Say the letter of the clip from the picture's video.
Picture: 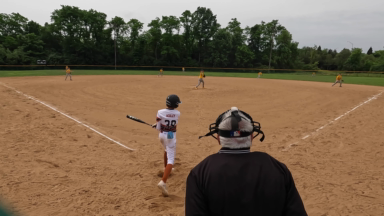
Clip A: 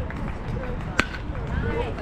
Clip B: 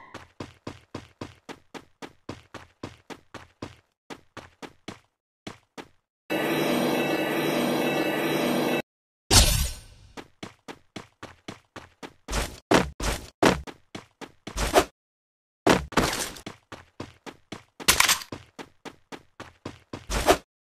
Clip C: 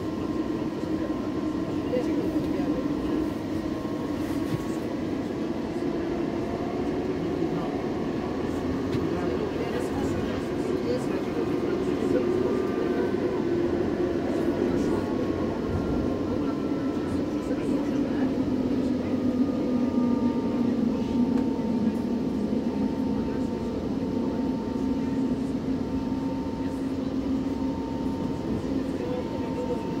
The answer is A